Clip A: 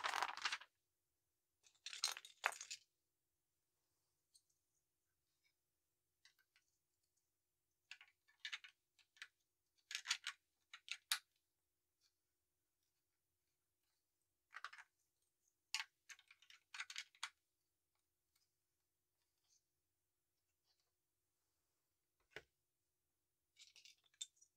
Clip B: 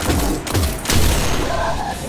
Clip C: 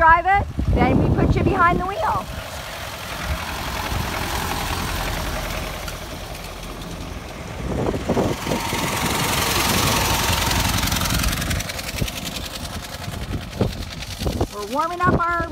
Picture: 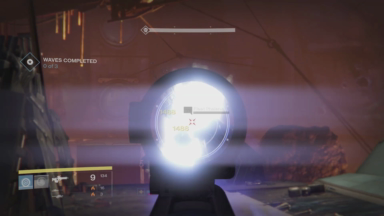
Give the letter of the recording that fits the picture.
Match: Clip B